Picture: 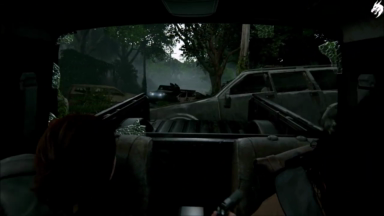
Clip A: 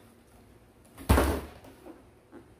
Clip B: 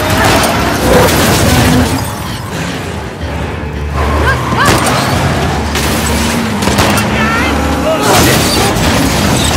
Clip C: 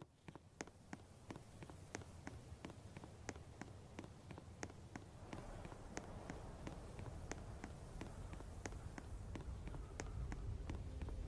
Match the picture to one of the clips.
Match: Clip B